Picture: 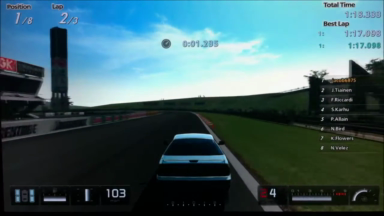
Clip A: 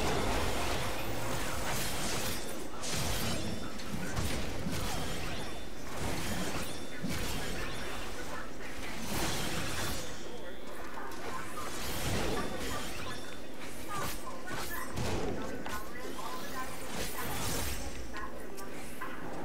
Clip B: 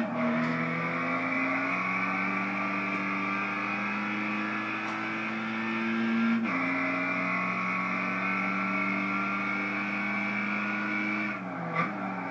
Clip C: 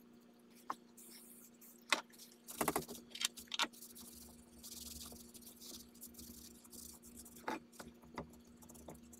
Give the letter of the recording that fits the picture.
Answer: B